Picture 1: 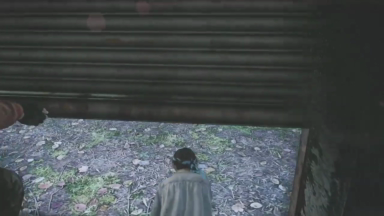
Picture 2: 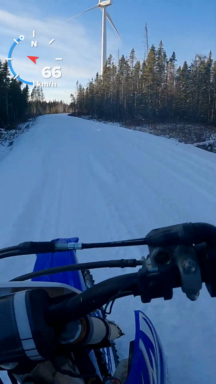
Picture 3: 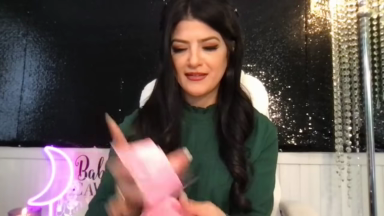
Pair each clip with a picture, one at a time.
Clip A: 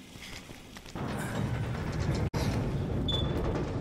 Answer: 1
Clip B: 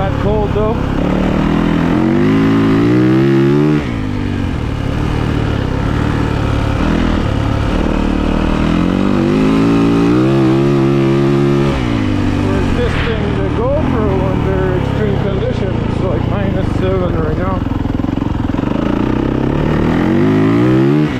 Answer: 2